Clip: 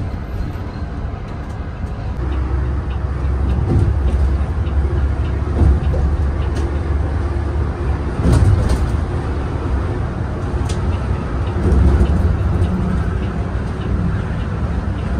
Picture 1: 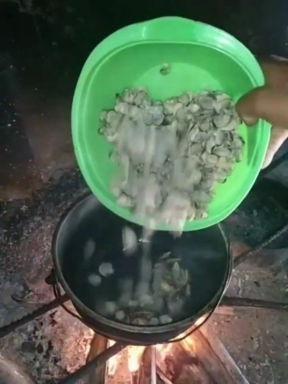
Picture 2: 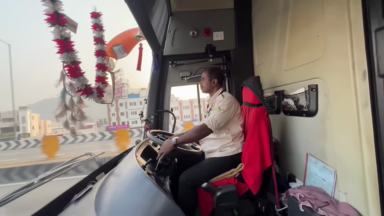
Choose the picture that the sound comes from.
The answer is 2